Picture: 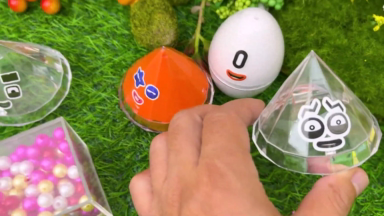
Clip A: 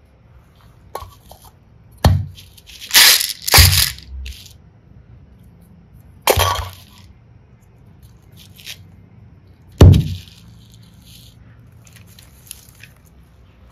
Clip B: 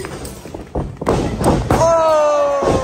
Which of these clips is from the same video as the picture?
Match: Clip A